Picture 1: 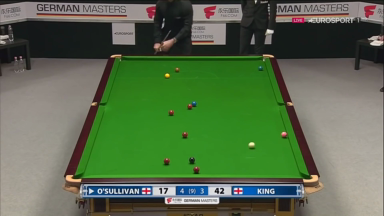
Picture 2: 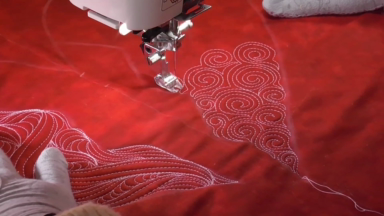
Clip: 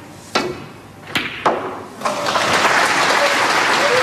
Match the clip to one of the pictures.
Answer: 1